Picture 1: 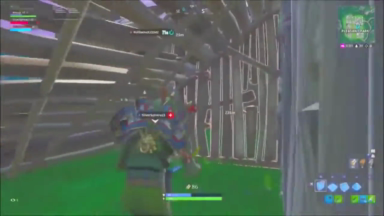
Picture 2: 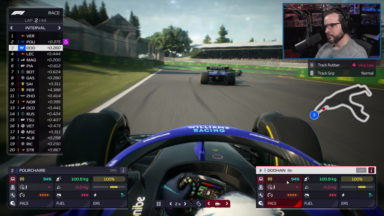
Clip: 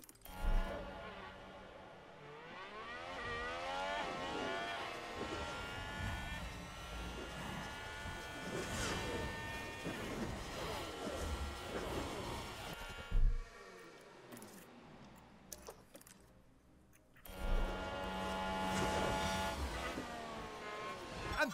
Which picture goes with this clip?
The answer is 2